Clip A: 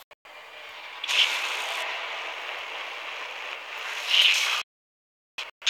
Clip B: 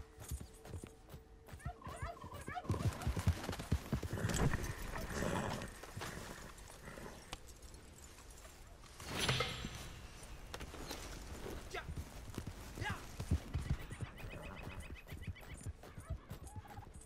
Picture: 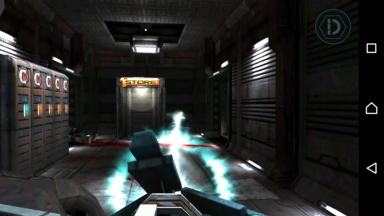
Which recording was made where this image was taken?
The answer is A